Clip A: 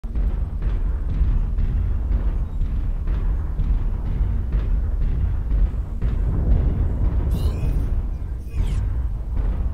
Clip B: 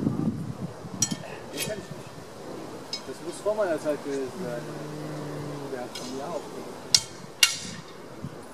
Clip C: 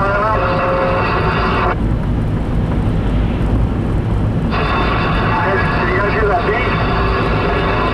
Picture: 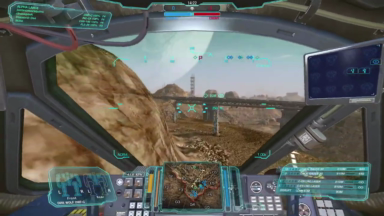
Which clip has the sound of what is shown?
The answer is A